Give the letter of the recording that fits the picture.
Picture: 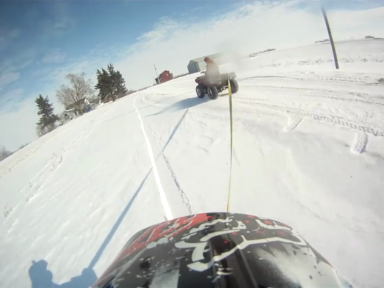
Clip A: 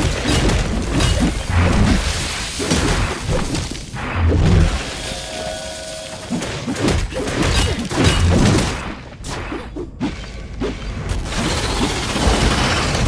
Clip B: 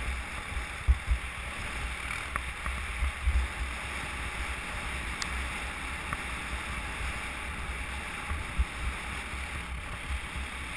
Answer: B